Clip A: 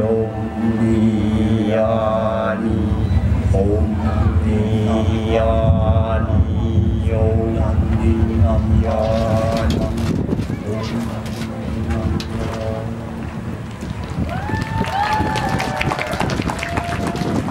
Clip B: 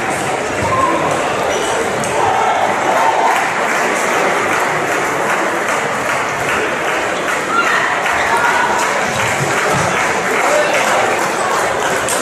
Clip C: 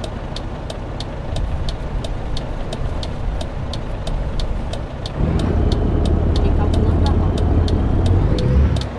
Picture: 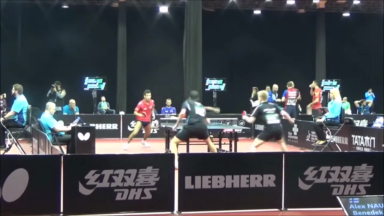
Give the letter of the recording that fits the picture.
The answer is B